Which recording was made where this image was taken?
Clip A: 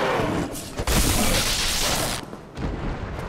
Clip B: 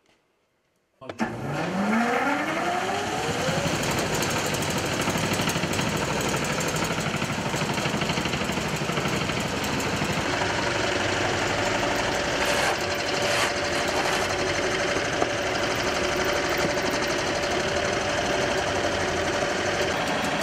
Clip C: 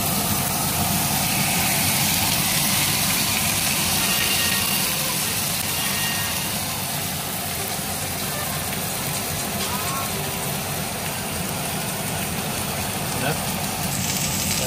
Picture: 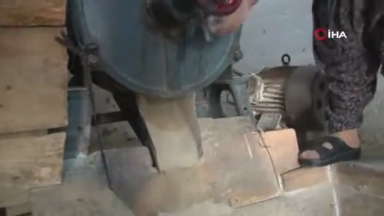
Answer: B